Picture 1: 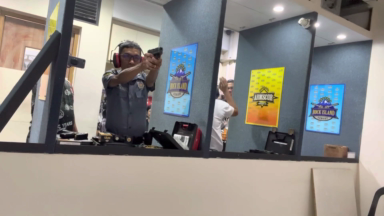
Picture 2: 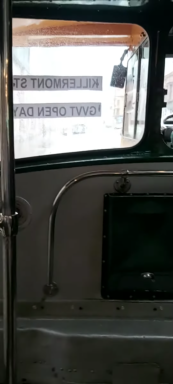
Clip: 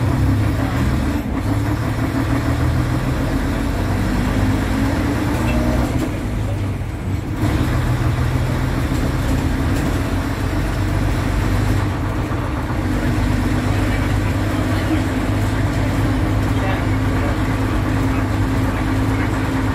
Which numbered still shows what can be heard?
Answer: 2